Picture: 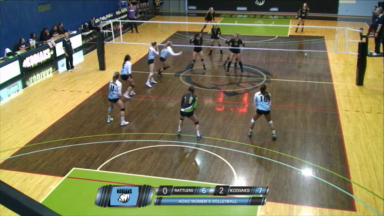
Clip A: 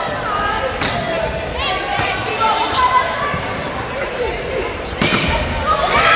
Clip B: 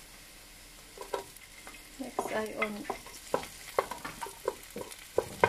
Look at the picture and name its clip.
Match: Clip A